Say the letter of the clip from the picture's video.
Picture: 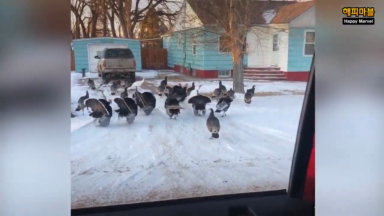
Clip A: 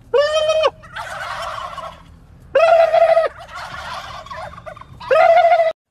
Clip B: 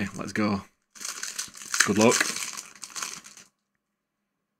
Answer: A